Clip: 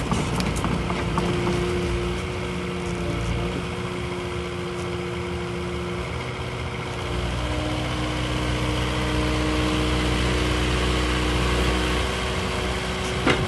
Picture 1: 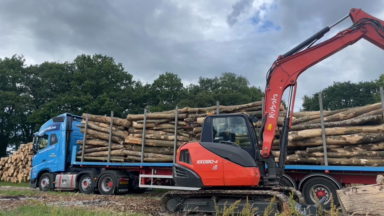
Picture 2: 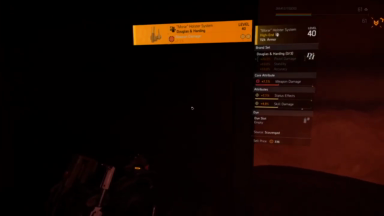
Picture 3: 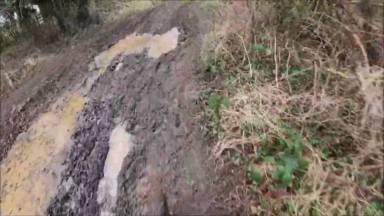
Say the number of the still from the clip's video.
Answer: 1